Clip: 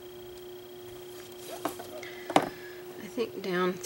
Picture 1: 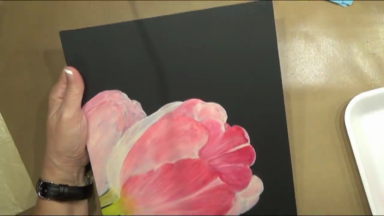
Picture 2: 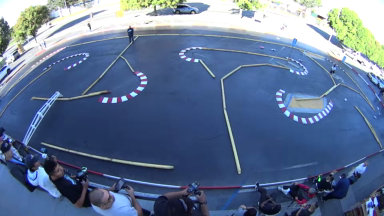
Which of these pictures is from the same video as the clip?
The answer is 1